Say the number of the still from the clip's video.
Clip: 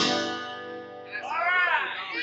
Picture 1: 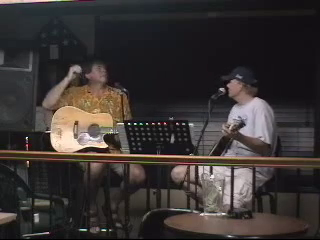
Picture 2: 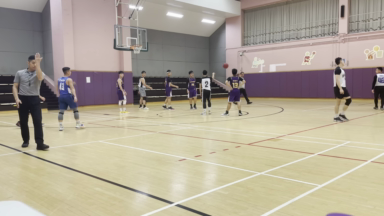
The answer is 1